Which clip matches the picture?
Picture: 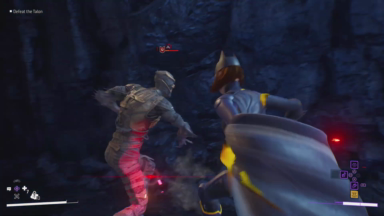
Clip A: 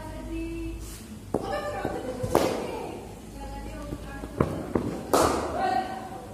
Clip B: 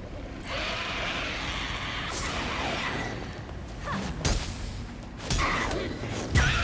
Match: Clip B